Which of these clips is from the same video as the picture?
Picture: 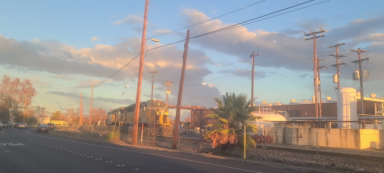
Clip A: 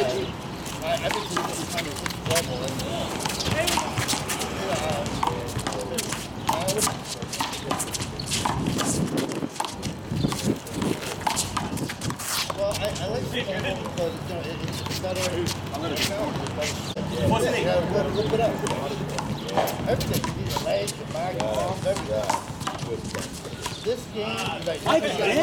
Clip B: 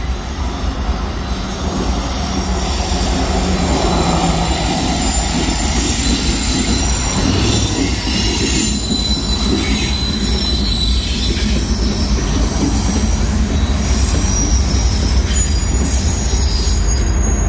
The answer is B